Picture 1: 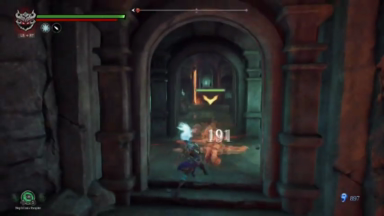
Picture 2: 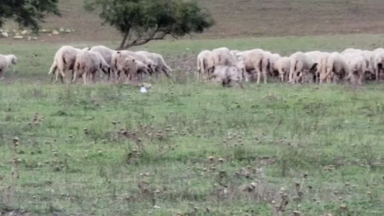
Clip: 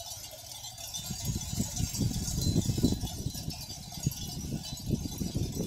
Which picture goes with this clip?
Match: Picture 2